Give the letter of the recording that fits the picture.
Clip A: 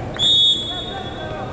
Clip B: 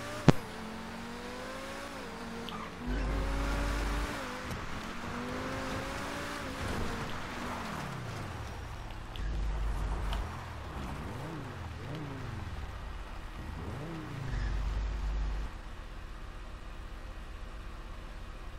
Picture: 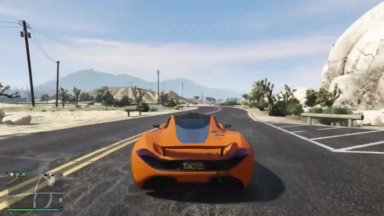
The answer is B